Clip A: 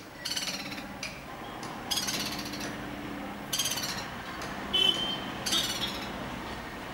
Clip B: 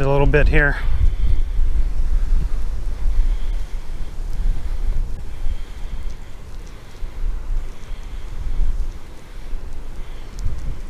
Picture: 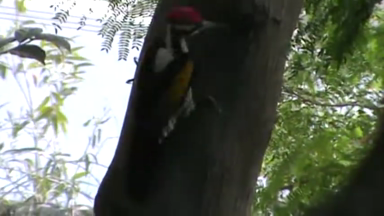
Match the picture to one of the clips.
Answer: A